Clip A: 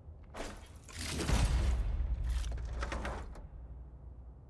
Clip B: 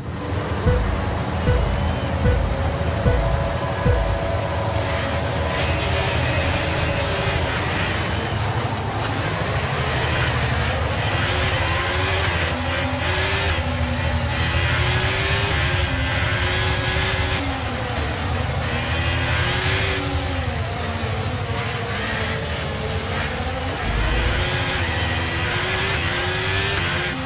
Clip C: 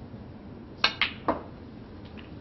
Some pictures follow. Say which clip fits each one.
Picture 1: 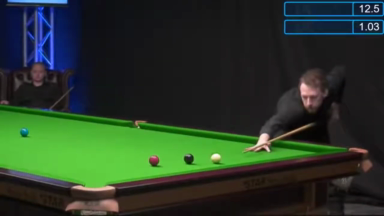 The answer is C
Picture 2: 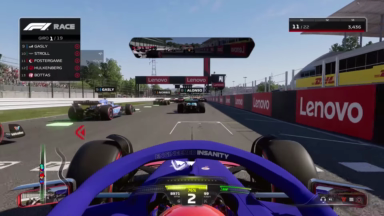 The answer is B